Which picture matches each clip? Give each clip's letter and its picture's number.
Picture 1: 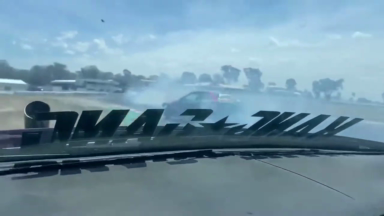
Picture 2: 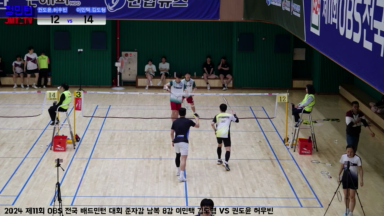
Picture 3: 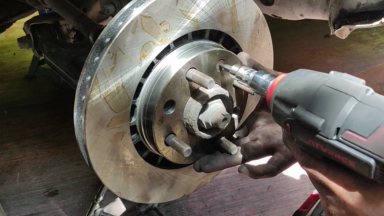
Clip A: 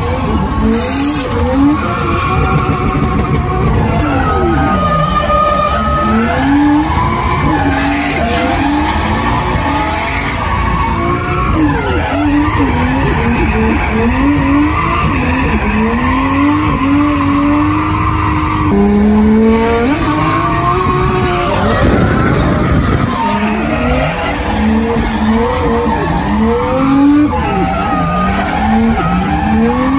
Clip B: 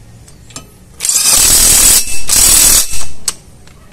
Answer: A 1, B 3